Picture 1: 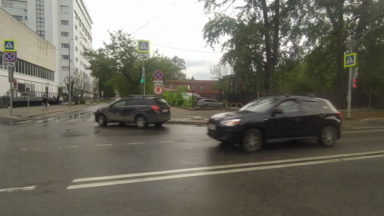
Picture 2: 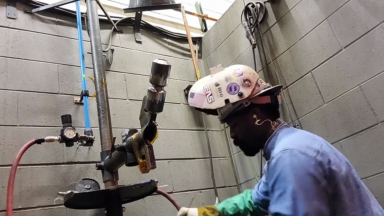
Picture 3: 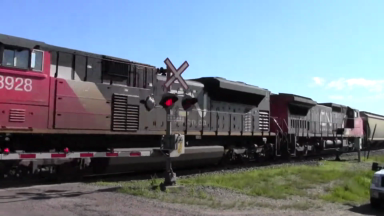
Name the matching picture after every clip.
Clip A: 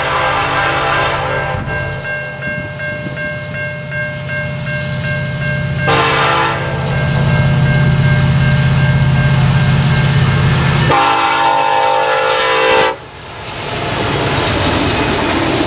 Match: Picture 3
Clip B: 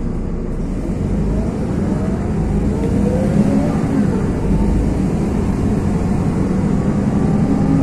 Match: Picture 1